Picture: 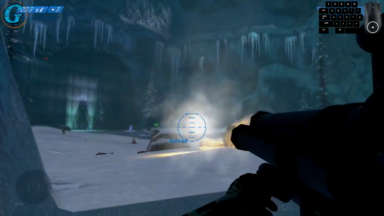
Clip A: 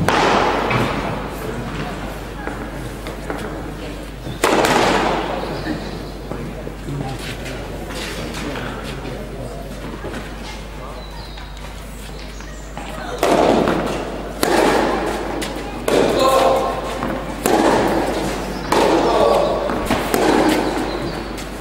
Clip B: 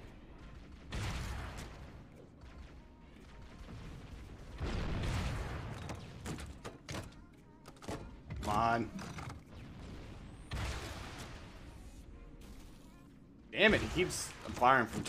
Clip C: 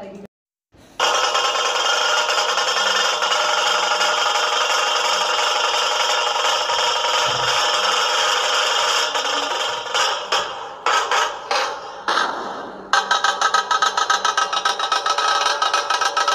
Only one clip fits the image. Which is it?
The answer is B